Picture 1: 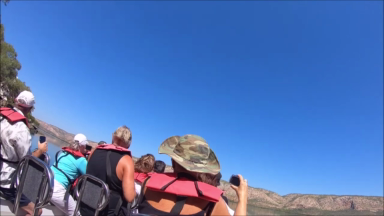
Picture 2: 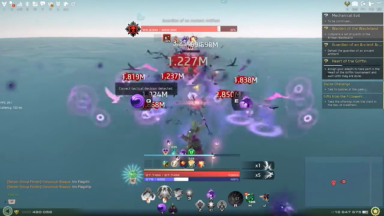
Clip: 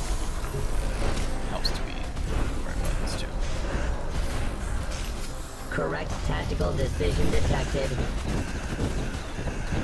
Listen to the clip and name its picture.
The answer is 2